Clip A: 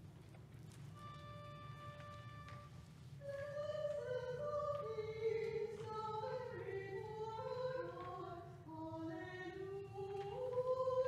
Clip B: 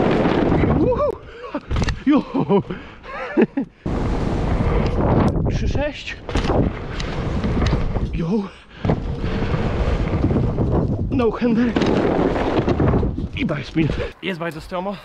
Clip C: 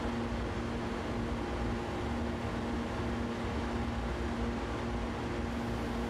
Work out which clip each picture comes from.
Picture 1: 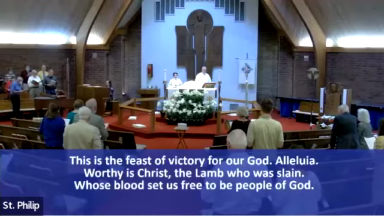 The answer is A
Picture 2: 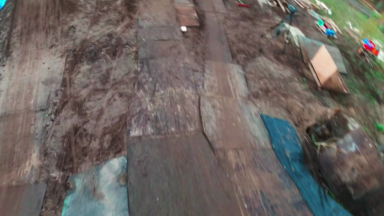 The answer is B